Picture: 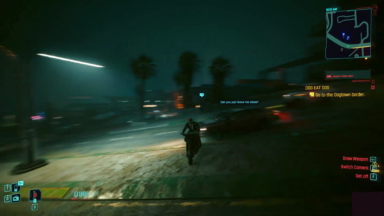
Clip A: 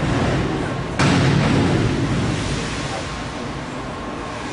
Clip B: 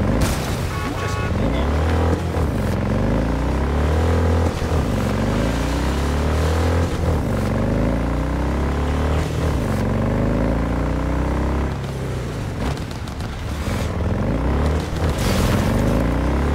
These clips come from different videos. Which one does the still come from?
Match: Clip B